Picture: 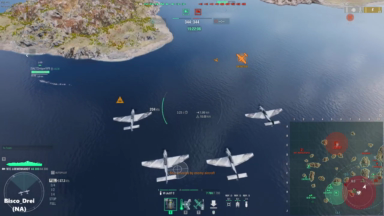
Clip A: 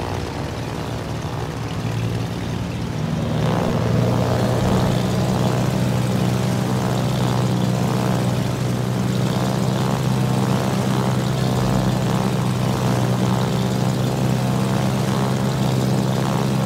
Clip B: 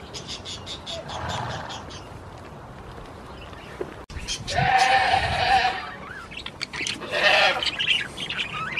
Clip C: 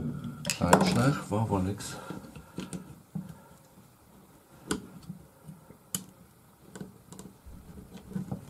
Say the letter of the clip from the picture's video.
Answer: A